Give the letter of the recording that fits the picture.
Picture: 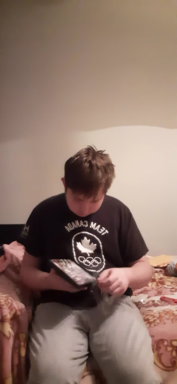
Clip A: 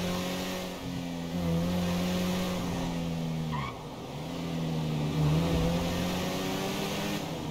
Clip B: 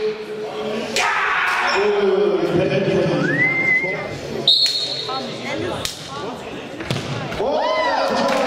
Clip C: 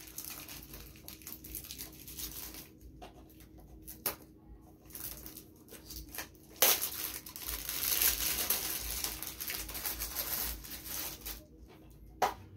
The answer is C